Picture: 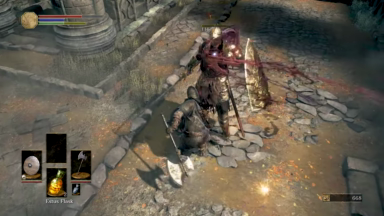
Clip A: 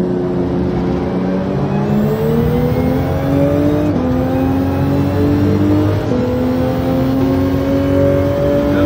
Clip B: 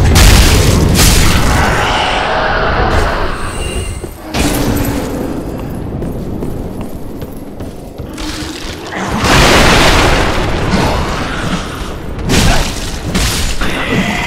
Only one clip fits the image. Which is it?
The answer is B